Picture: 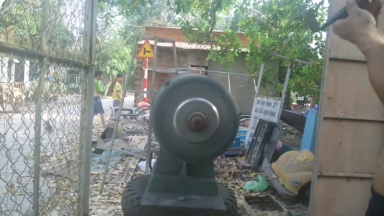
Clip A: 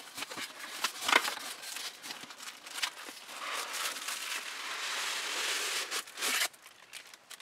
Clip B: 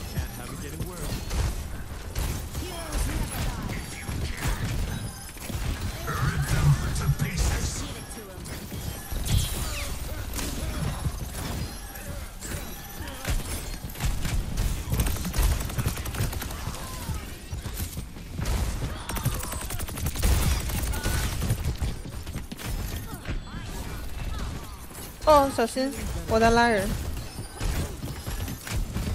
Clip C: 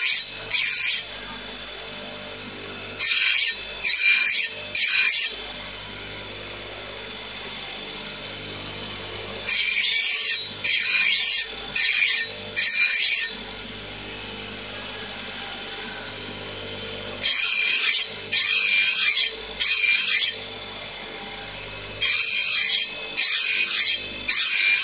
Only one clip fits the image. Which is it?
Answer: C